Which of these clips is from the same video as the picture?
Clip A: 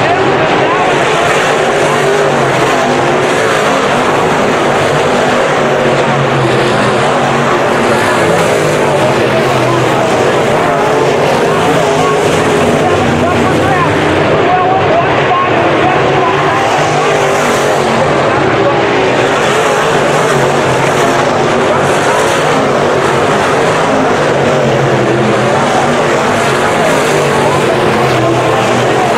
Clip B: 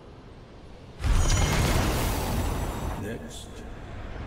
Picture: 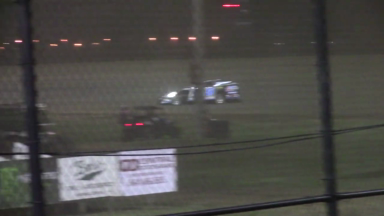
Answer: A